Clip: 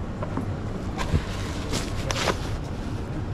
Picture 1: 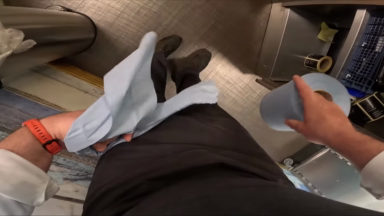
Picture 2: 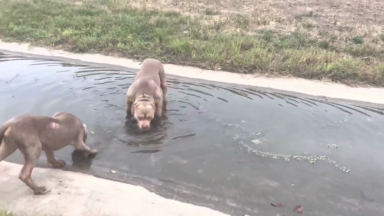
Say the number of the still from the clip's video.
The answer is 1